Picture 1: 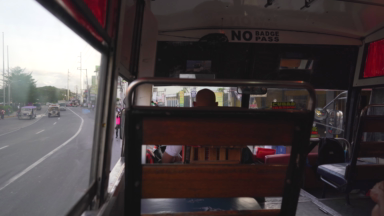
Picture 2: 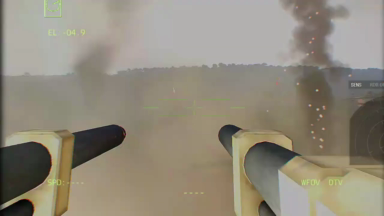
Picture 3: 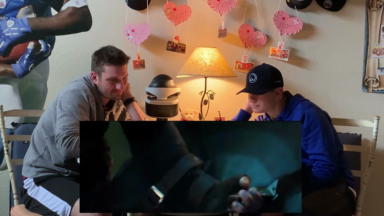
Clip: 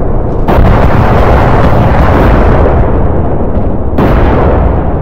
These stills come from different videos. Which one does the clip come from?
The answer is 2